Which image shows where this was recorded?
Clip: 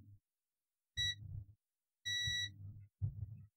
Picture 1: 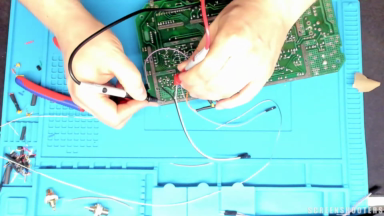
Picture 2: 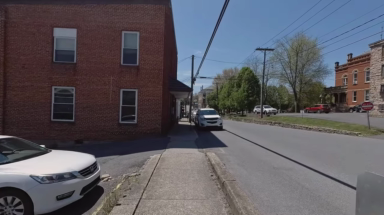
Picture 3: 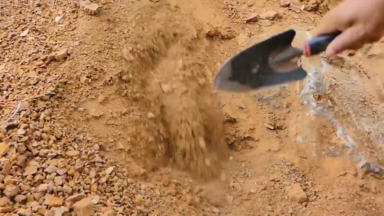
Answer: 1